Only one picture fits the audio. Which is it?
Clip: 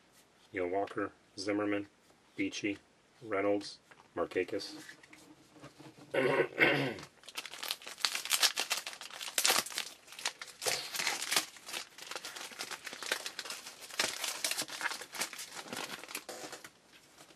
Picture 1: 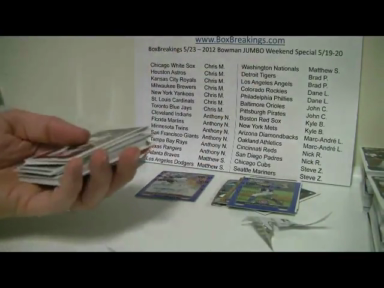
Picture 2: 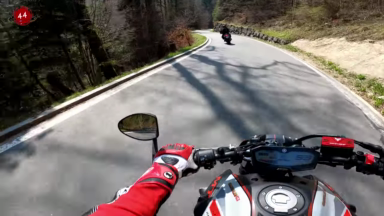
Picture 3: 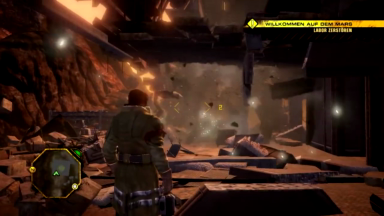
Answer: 1